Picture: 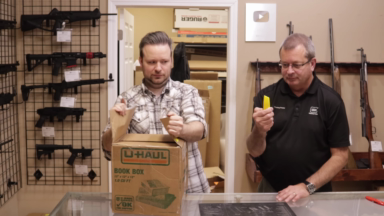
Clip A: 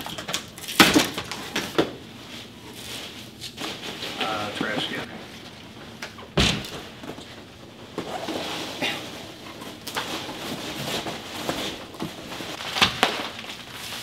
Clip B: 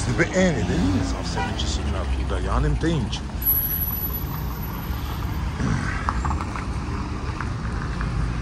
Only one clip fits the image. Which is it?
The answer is A